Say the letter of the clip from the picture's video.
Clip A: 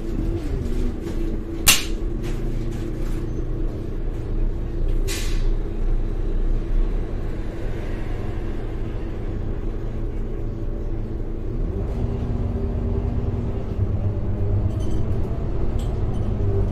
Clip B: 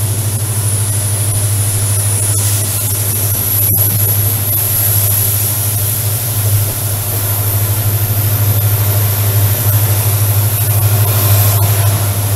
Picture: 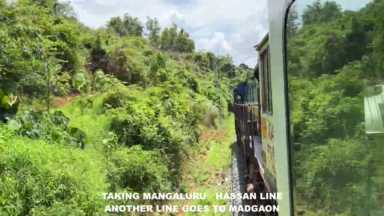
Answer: B